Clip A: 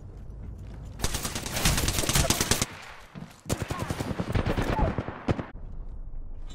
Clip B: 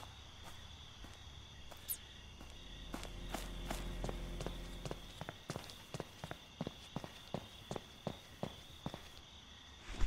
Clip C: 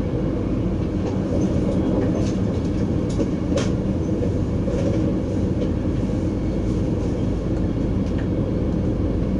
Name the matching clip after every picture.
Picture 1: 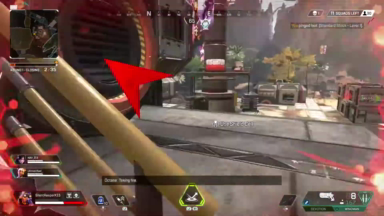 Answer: A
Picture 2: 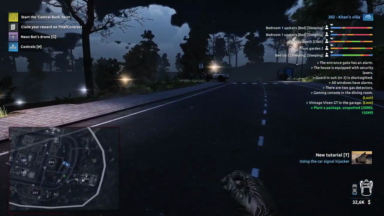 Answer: B